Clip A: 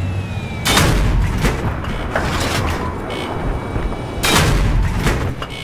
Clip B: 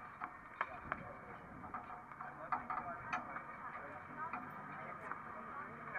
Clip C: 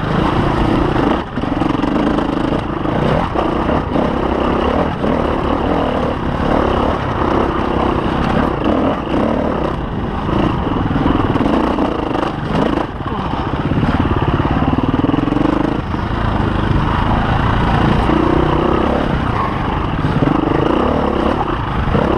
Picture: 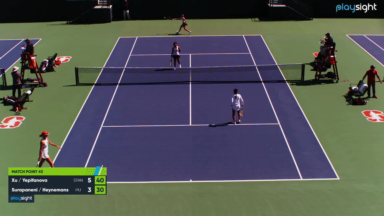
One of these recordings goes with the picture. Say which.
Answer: B